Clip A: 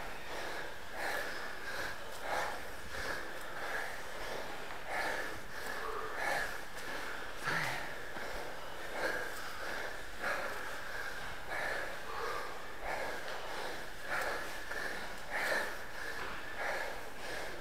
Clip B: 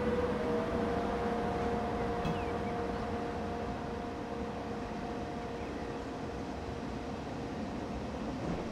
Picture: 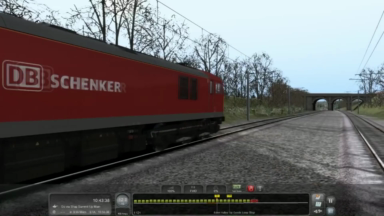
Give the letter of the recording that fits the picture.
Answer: B